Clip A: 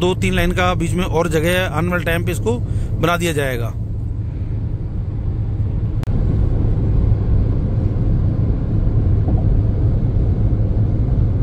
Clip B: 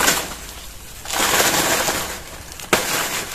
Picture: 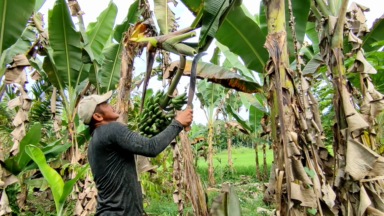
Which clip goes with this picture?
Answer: B